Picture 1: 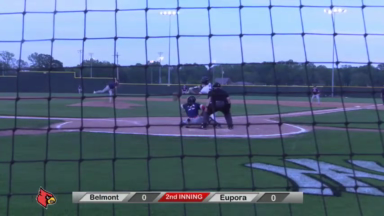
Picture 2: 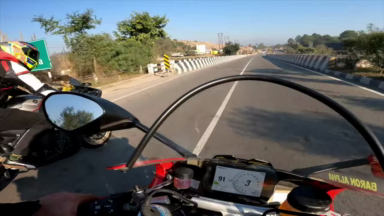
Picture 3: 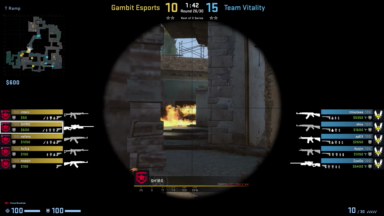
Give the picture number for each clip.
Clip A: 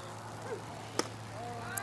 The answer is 1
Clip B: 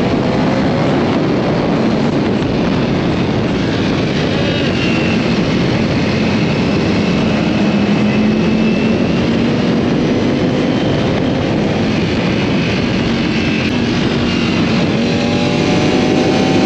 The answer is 2